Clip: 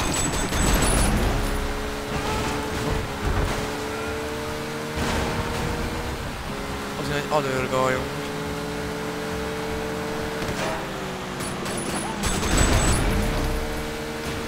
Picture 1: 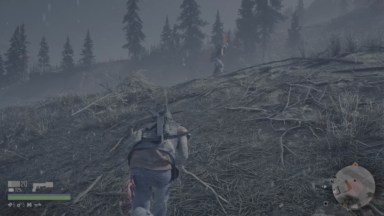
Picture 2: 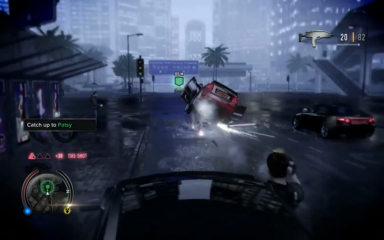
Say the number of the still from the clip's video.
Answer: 2